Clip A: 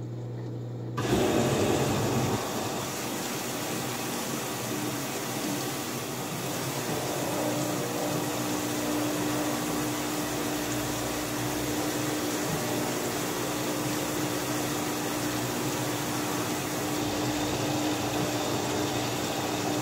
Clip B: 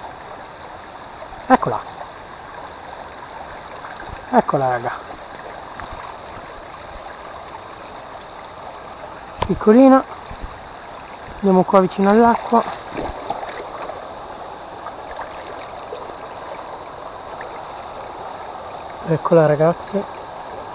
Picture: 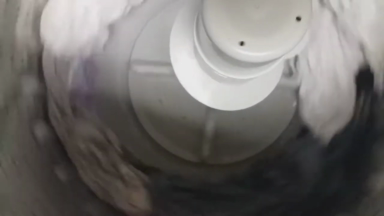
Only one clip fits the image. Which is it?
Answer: A